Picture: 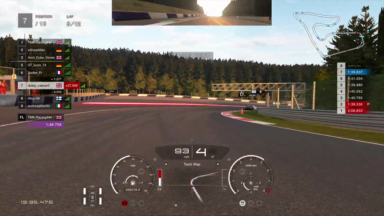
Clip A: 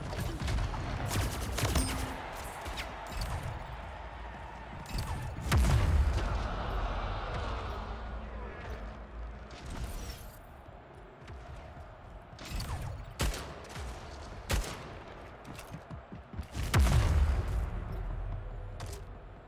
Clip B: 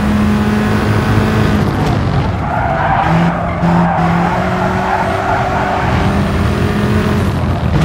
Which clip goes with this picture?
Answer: B